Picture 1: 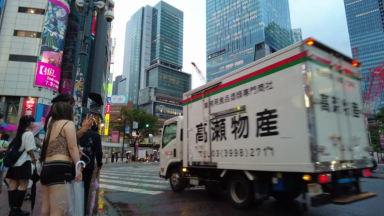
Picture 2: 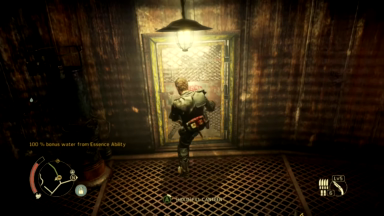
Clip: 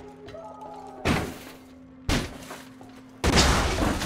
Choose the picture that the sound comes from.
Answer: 2